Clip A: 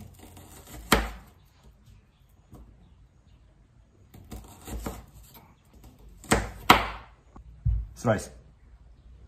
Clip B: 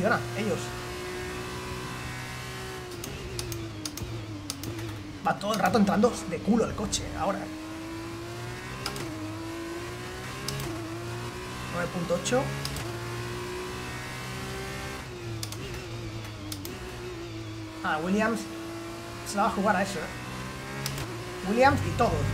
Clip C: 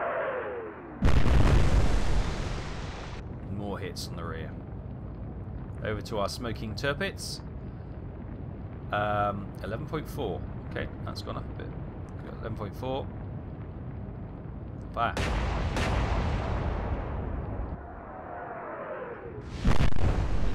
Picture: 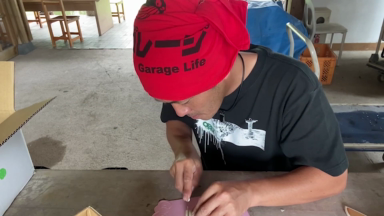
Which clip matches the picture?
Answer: A